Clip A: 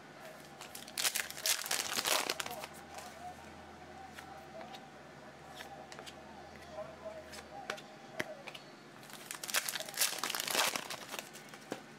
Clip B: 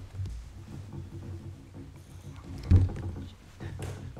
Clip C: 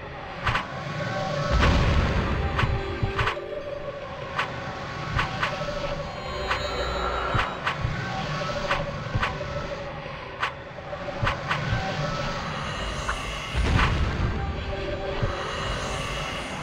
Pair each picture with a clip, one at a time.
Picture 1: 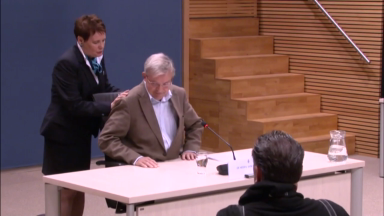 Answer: B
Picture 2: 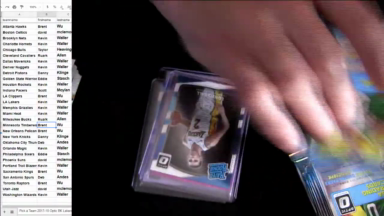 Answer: A